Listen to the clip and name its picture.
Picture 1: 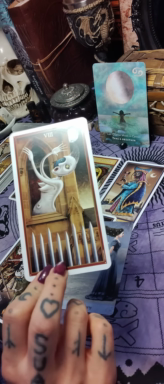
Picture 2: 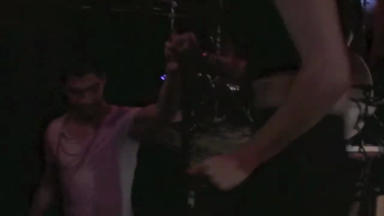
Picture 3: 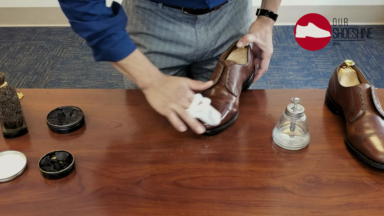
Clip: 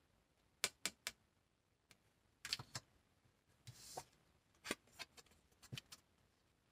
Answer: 1